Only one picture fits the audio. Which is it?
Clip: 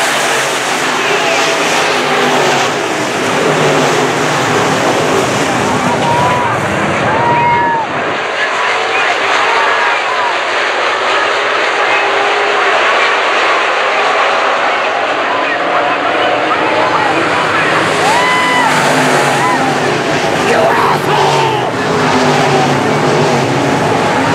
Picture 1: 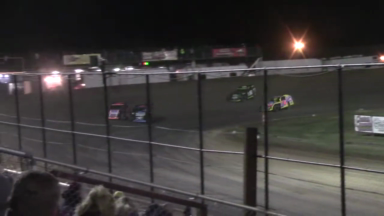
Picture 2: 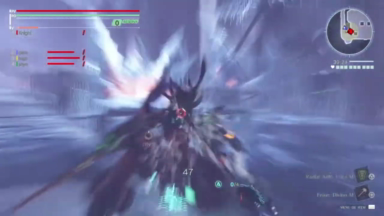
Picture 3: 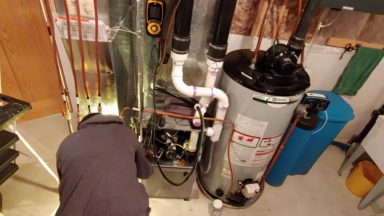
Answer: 1